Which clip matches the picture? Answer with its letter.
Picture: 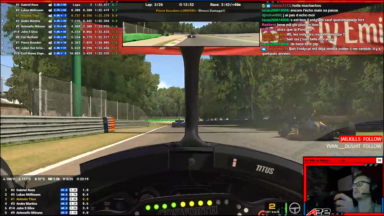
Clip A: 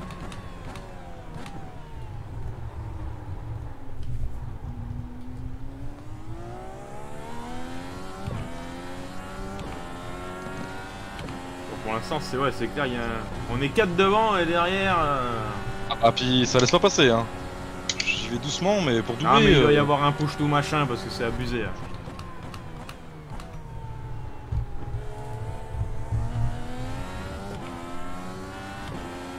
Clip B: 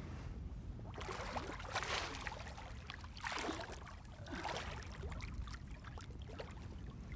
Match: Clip A